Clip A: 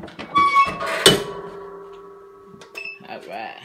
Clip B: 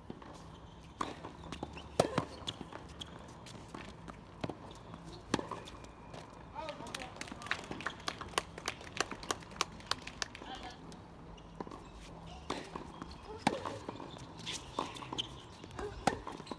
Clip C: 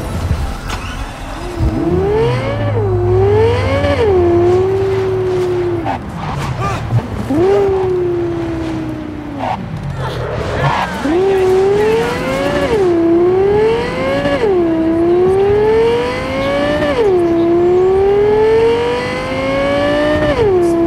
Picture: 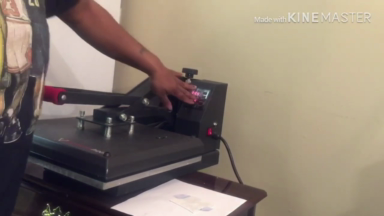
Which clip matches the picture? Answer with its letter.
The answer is A